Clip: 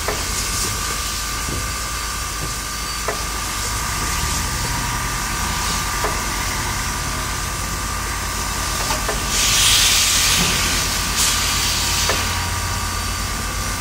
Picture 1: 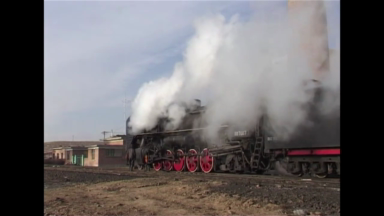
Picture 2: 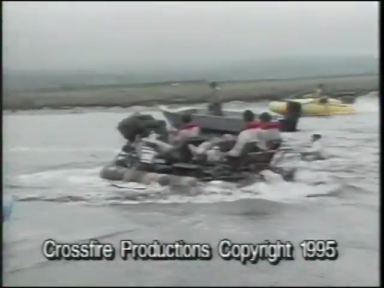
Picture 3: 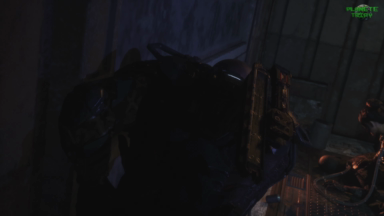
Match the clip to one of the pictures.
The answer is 1